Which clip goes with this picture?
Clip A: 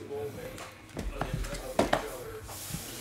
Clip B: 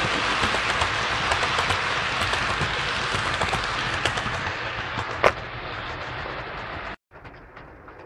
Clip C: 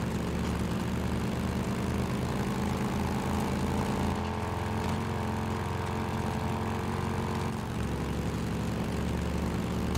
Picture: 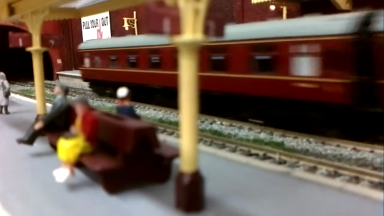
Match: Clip B